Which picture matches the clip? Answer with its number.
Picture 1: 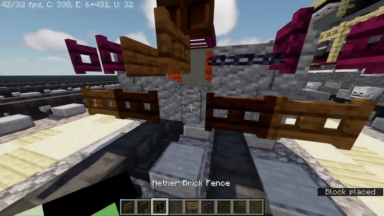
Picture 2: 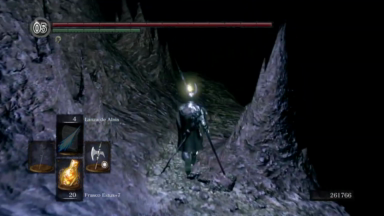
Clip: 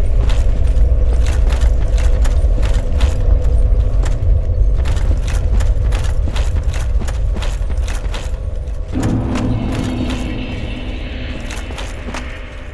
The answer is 2